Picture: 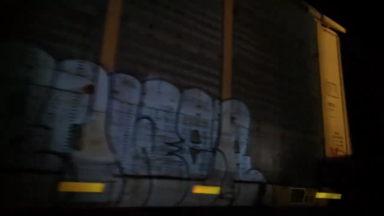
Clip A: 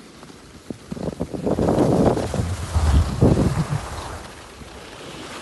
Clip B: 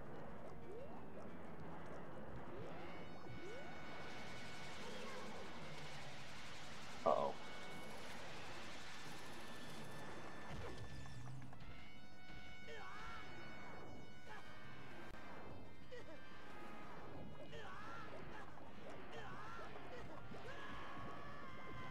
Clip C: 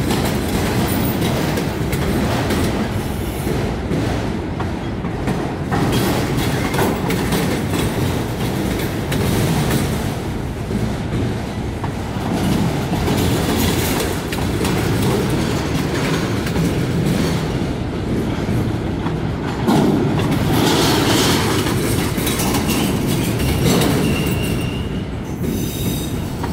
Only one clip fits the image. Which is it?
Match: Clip C